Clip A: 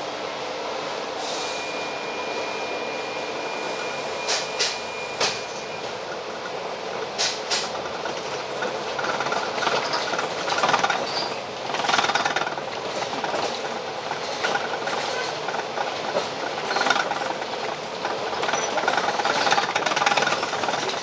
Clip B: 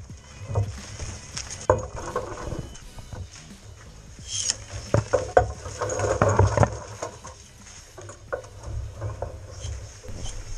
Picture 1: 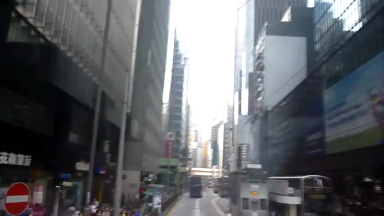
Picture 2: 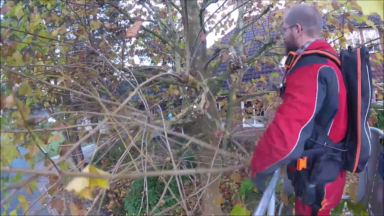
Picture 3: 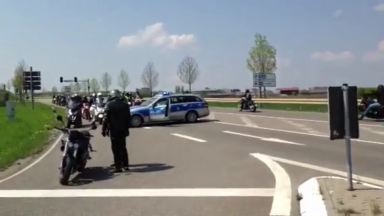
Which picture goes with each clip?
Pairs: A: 1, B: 2